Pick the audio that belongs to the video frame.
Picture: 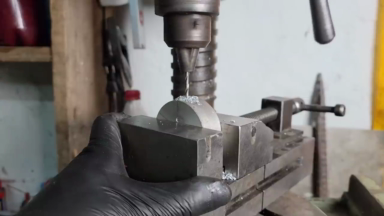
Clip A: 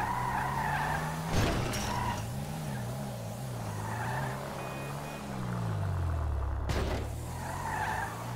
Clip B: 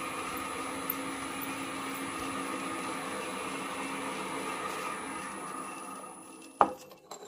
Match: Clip B